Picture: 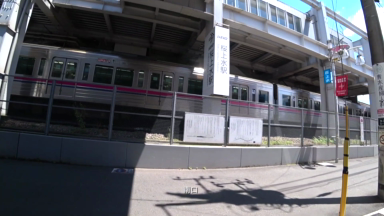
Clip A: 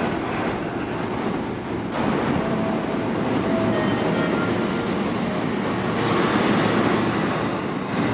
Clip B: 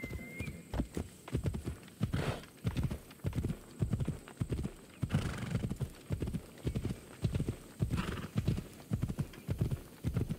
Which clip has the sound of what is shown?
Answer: A